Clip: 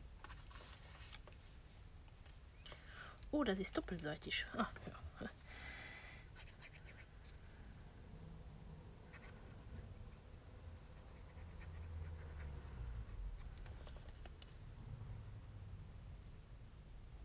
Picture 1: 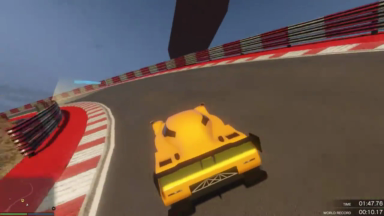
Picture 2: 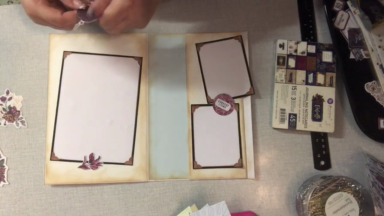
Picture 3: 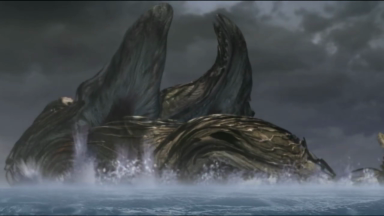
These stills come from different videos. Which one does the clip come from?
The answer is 2